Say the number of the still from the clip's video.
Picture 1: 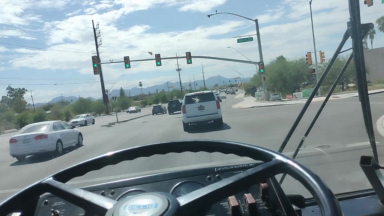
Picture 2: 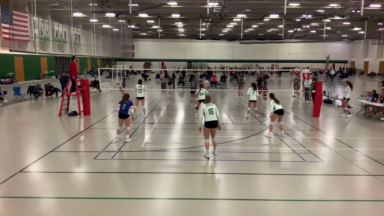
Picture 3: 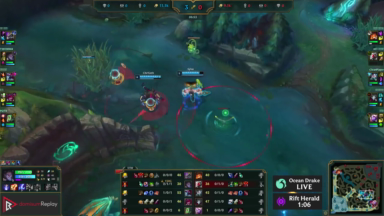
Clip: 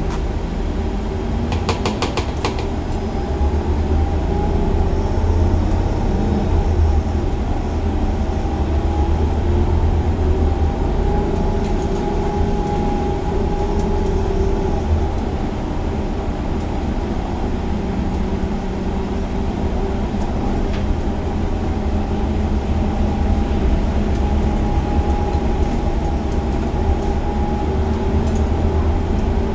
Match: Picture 1